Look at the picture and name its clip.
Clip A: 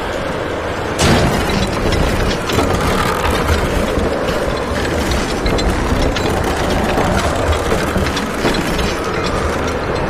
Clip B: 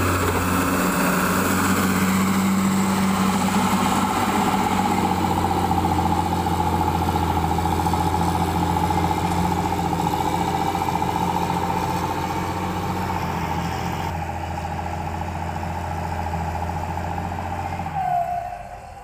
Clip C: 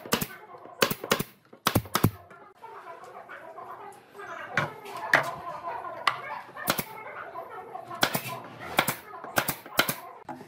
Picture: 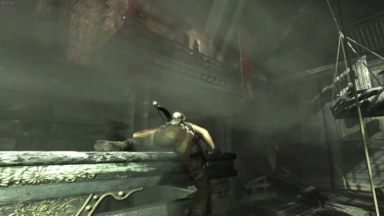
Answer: A